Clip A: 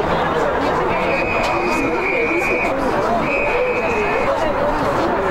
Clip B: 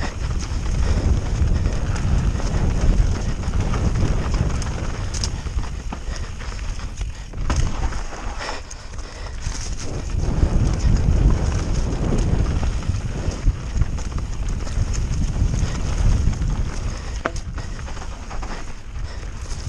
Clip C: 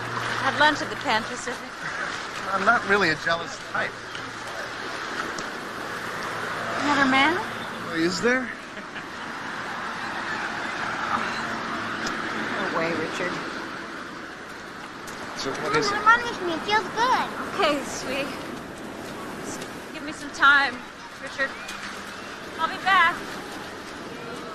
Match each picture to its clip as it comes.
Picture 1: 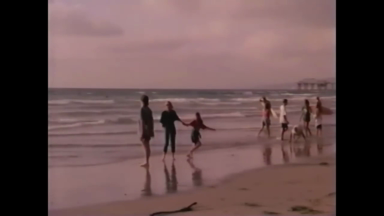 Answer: C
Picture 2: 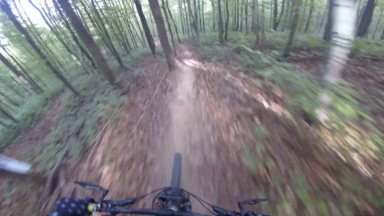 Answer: B